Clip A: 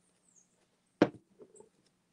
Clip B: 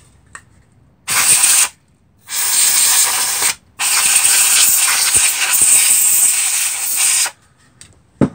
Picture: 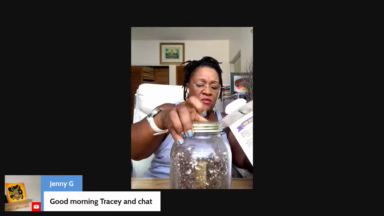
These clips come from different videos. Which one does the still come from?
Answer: A